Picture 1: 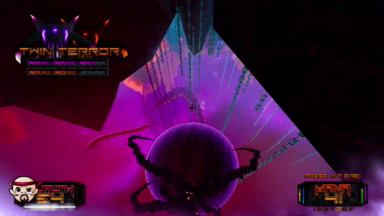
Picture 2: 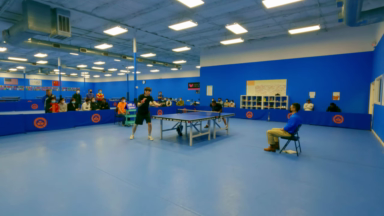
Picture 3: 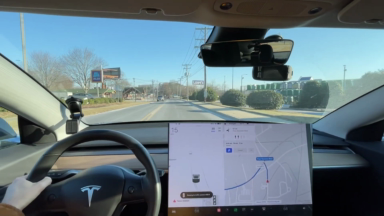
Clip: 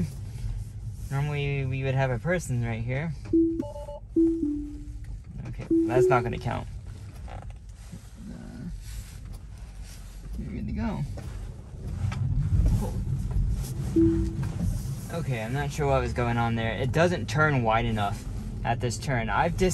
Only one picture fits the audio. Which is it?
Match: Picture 3